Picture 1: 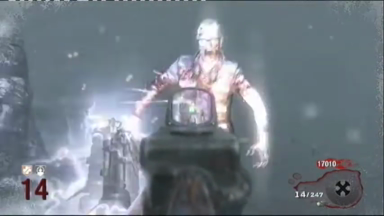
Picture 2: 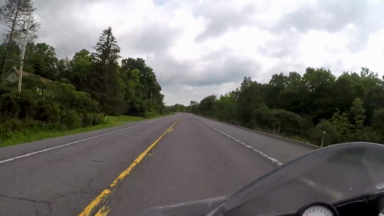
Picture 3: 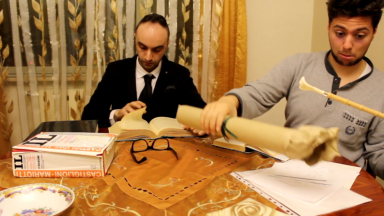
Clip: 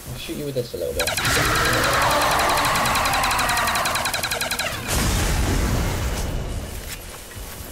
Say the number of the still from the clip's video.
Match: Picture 1